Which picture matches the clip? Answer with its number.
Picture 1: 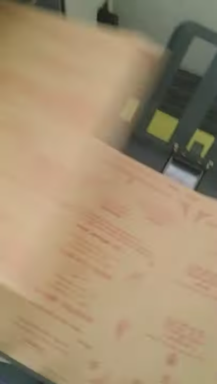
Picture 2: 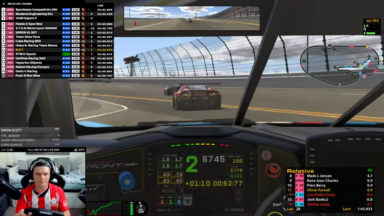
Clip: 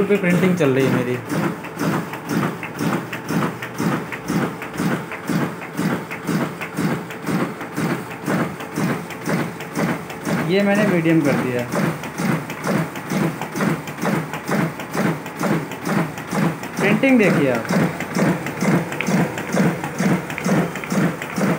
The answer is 1